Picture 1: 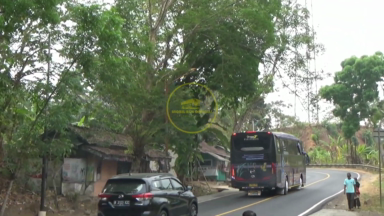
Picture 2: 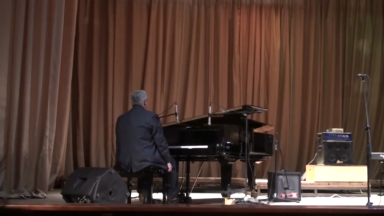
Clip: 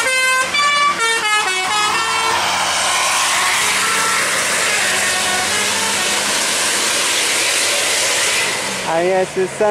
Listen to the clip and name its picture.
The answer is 1